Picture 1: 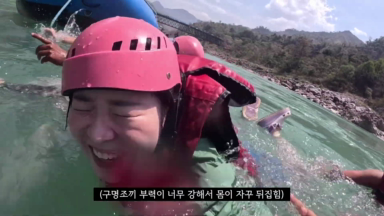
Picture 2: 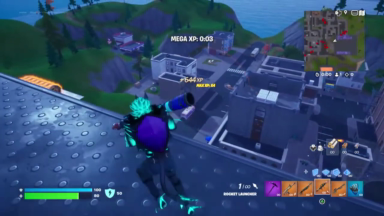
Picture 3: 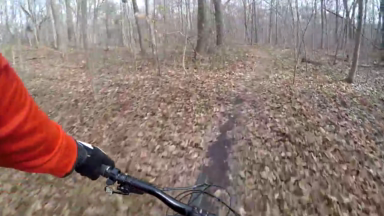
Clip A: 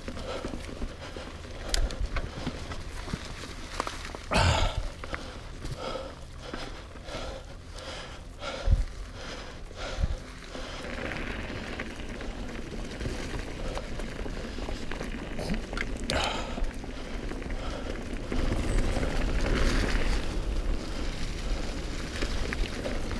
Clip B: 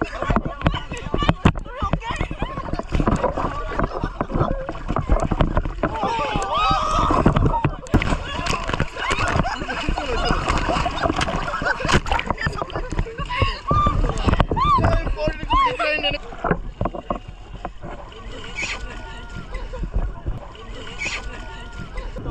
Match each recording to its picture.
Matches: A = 3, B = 1